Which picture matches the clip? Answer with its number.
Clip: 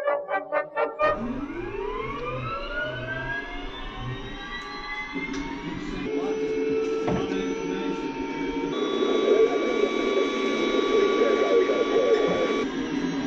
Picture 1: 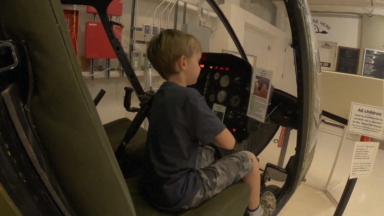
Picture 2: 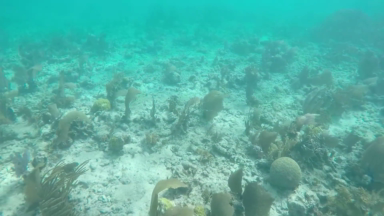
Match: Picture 1